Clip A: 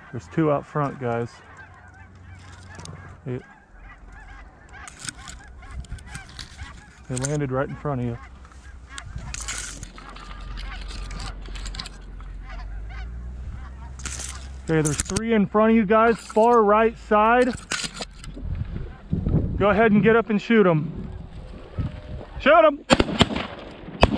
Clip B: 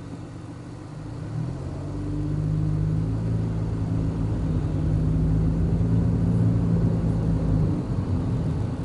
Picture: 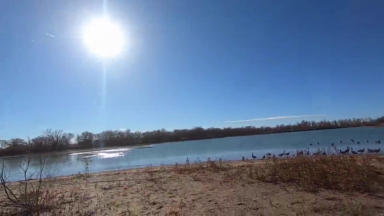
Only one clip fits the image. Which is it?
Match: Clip A